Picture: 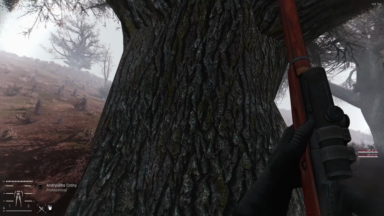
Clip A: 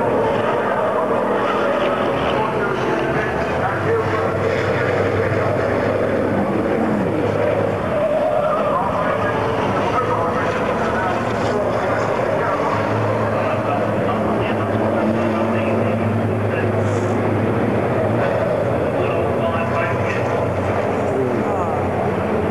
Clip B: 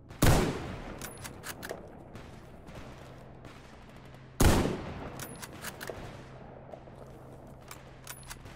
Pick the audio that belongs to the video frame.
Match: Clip B